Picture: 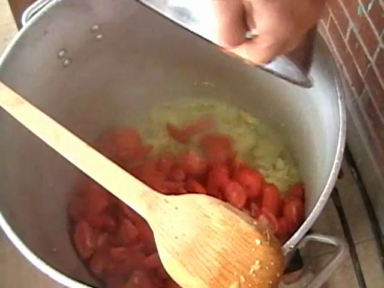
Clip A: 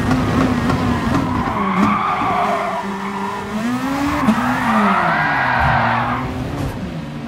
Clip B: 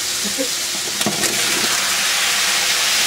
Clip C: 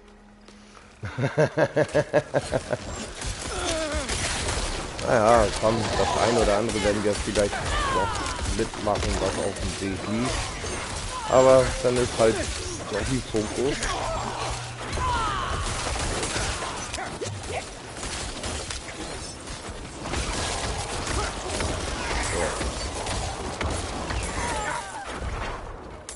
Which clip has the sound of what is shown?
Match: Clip B